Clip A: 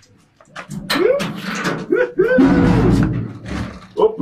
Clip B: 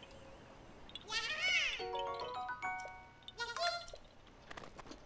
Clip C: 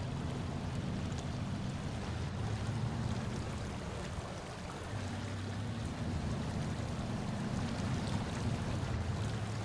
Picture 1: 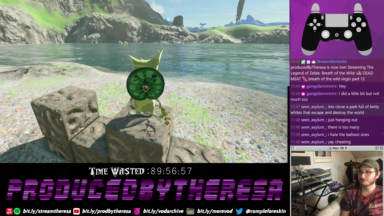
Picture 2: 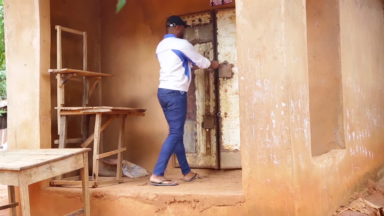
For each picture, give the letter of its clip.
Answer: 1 B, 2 A